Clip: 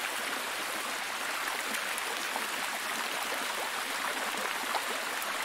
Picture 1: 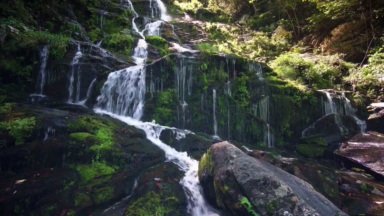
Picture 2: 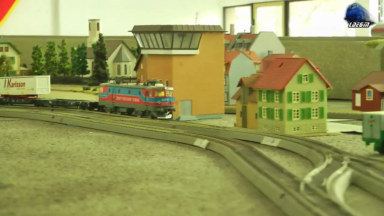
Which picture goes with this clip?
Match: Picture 1